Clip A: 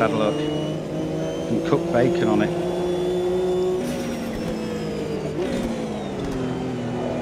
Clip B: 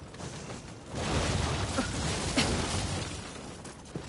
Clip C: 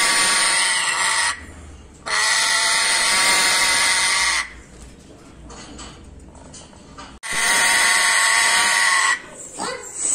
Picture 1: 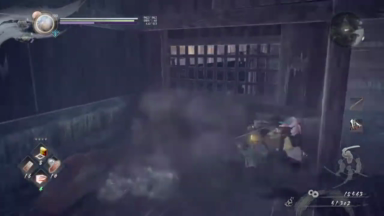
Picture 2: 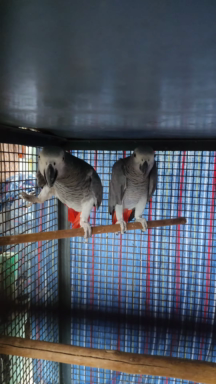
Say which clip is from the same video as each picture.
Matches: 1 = B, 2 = C